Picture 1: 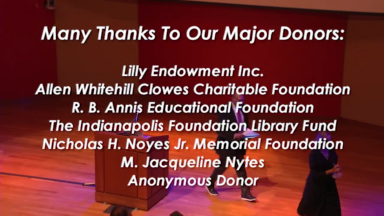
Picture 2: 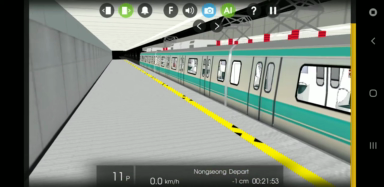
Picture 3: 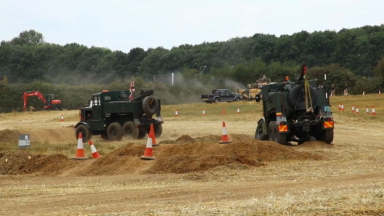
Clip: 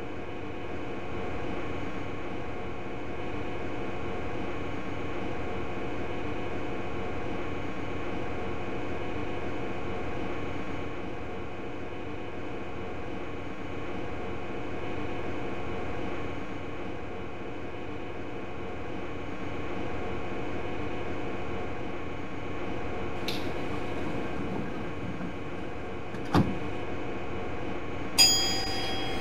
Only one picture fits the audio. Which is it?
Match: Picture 2